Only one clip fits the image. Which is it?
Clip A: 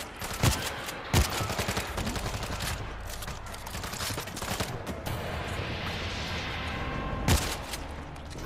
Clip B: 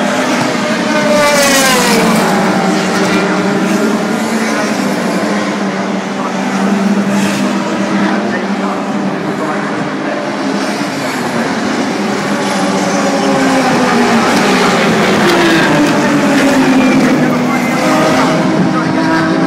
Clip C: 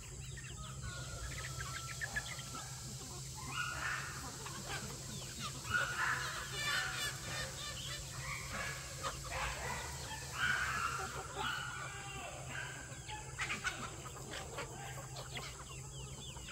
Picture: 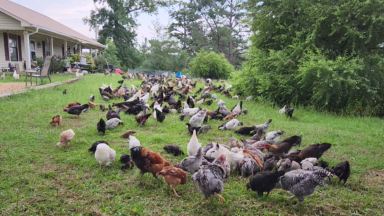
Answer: C